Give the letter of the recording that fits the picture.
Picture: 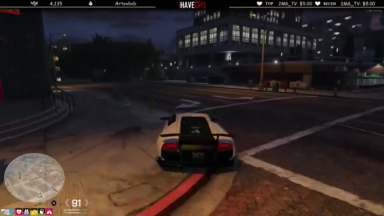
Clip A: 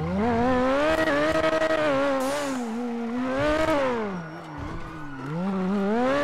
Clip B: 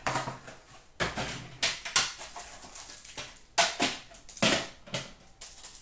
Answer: A